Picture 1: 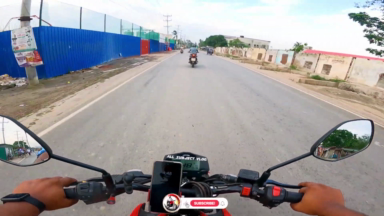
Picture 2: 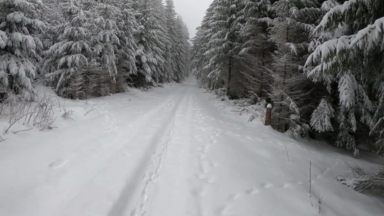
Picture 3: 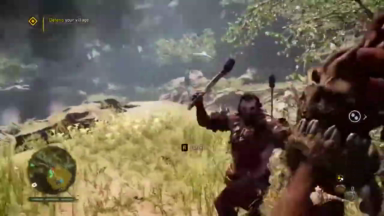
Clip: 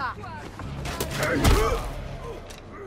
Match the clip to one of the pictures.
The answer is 3